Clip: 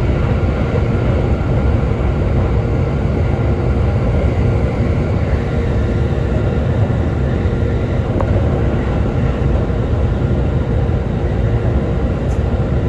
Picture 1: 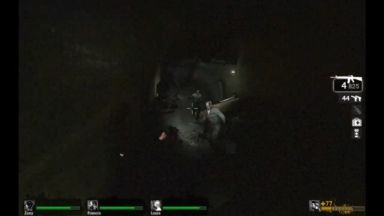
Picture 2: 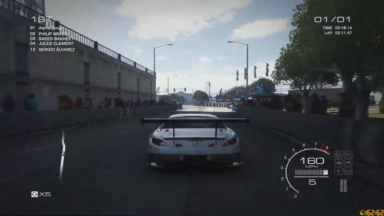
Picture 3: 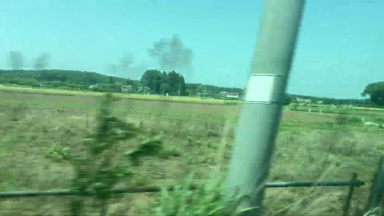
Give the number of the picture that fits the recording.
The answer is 3